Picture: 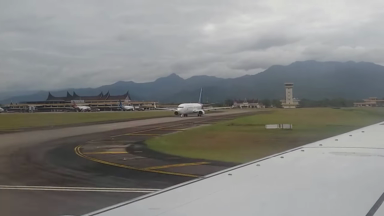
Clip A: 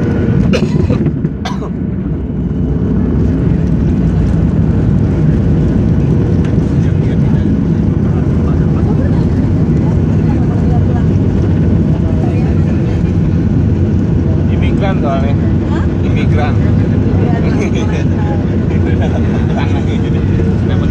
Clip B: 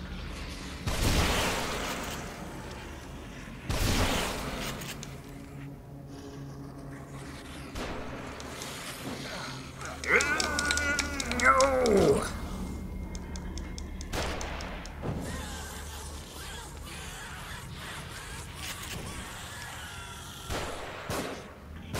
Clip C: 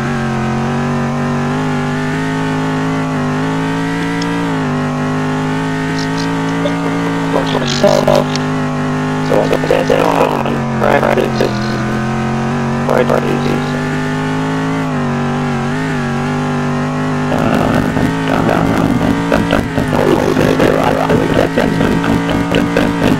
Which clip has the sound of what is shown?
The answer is A